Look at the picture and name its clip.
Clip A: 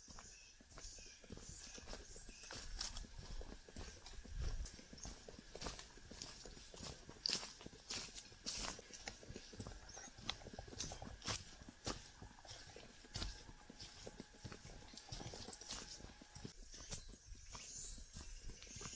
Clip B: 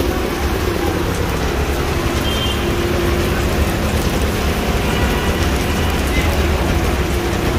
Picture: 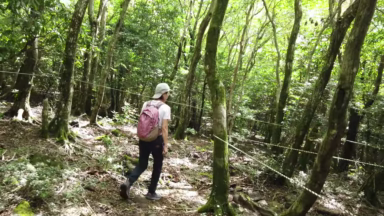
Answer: A